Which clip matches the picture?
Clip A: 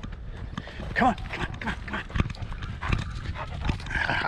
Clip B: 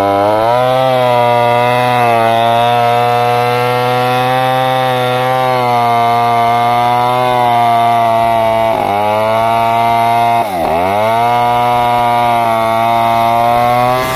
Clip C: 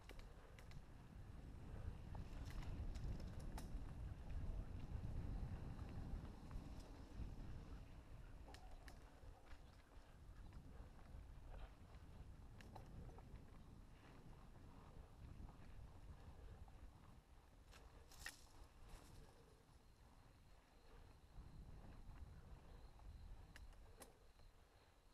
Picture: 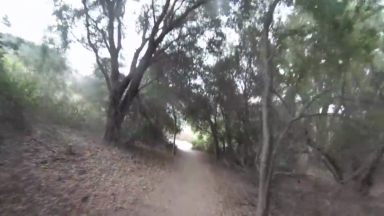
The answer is C